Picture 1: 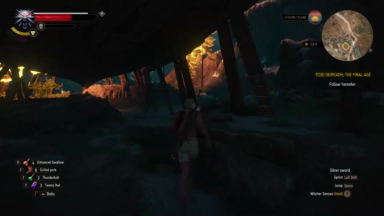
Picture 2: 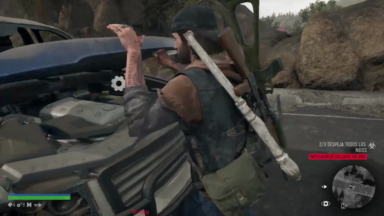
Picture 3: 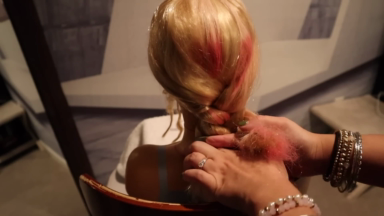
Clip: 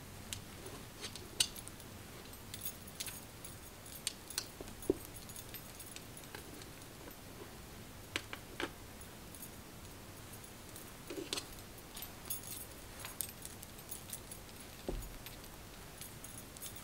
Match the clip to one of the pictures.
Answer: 3